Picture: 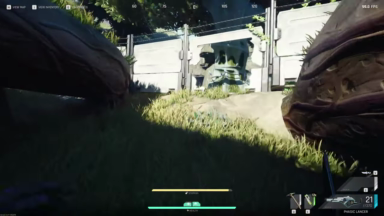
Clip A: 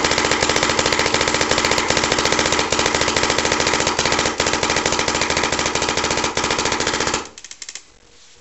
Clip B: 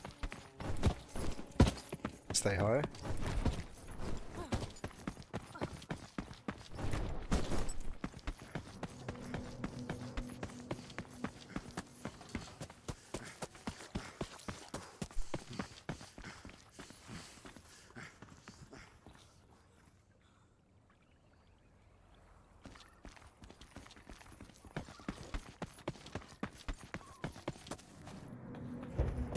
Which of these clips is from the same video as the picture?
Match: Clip B